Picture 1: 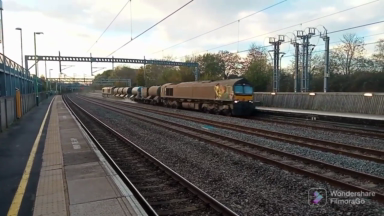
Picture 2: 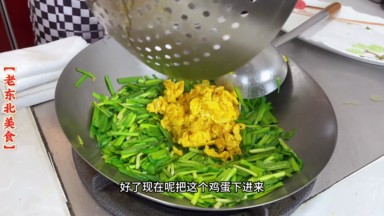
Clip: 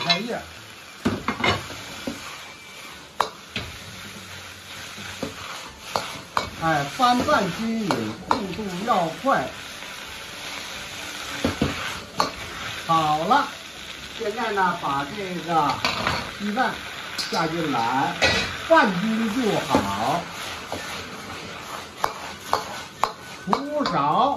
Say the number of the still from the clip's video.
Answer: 2